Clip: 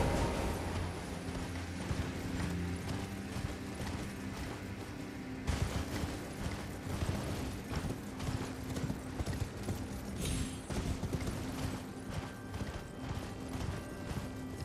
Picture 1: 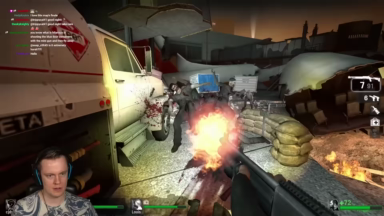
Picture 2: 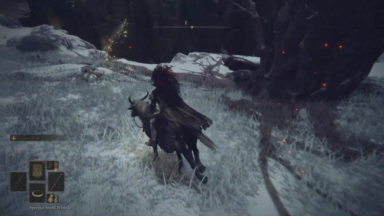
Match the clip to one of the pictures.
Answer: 2